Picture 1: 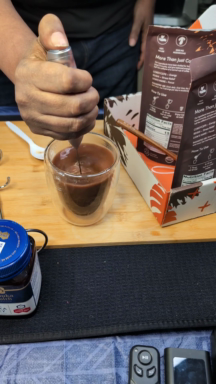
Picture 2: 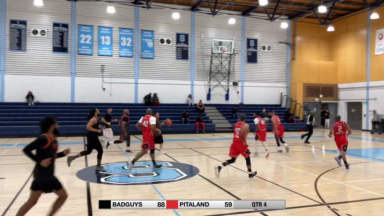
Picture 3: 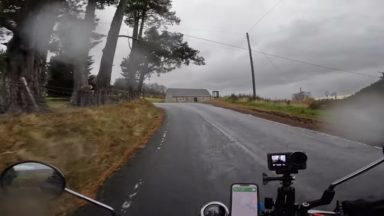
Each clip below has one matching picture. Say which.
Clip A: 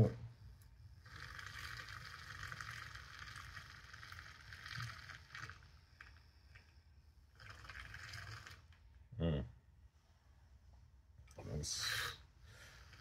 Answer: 1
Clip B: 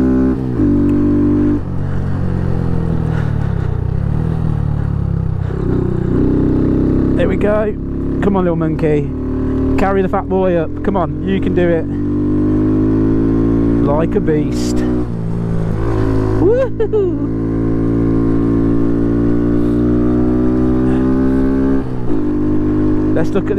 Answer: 3